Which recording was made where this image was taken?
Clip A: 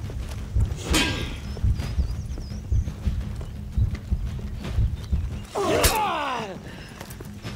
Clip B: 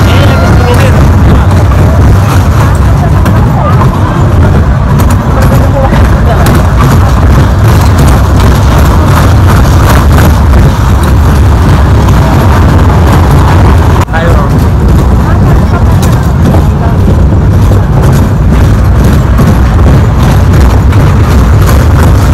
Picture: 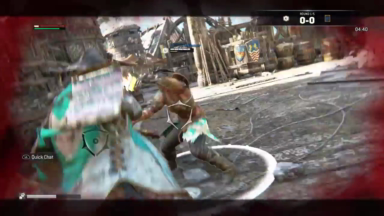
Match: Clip A